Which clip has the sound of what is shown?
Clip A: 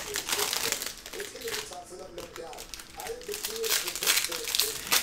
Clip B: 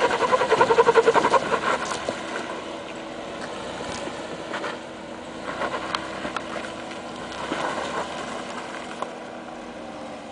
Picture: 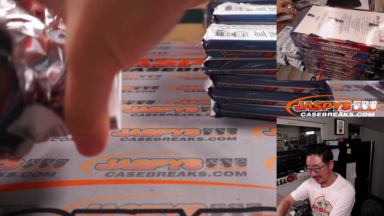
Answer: A